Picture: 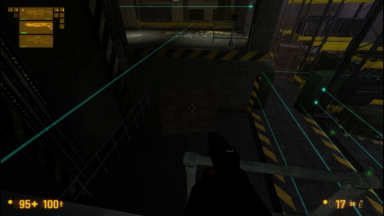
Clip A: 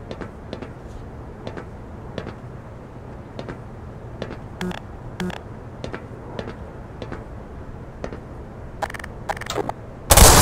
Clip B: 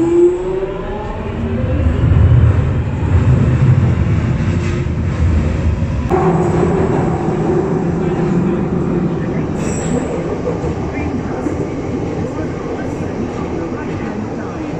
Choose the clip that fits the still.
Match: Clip A